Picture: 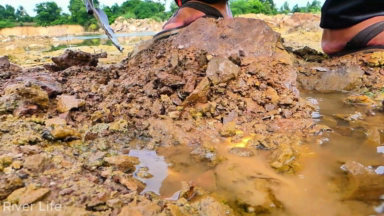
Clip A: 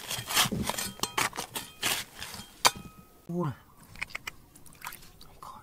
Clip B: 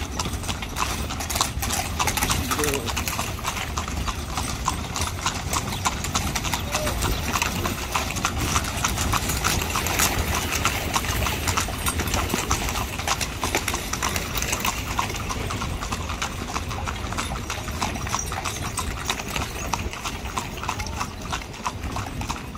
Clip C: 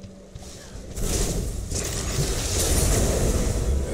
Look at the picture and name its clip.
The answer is A